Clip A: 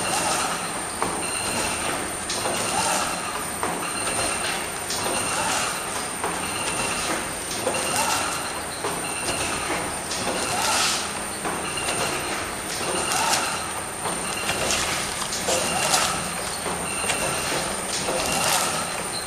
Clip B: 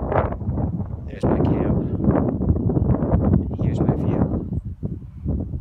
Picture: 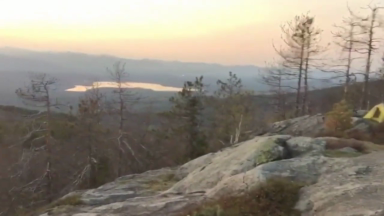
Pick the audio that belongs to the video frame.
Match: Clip B